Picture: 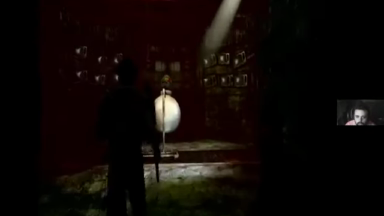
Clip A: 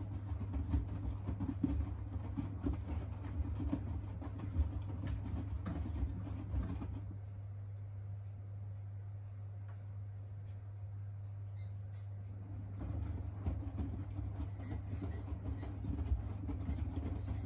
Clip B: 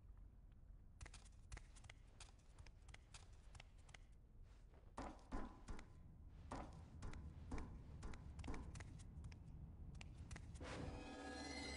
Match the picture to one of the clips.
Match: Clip B